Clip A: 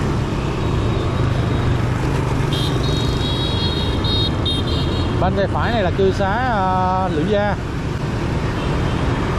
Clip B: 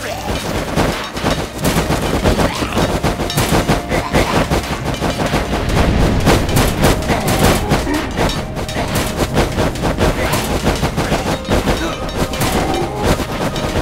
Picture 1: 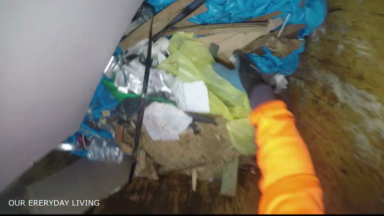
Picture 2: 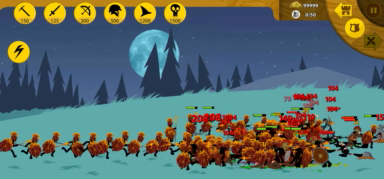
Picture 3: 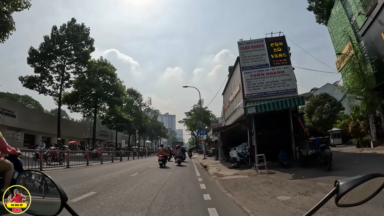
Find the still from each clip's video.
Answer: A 3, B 2